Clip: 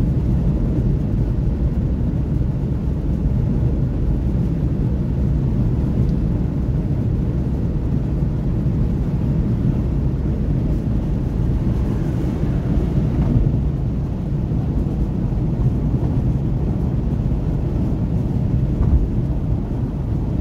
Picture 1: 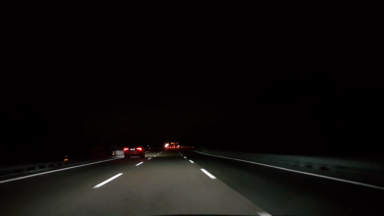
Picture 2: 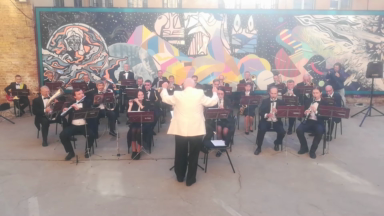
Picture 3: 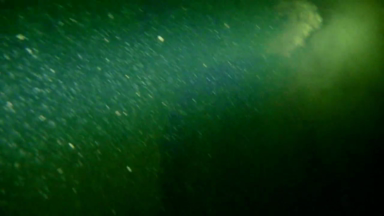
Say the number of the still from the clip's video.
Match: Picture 1